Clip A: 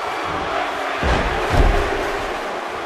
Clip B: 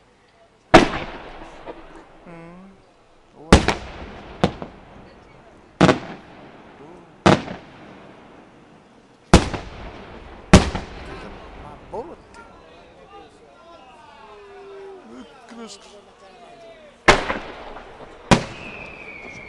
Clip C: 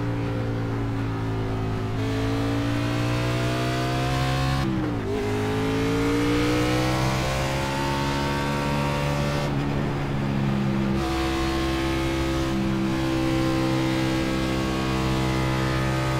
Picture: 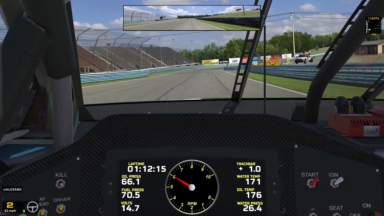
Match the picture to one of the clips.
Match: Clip C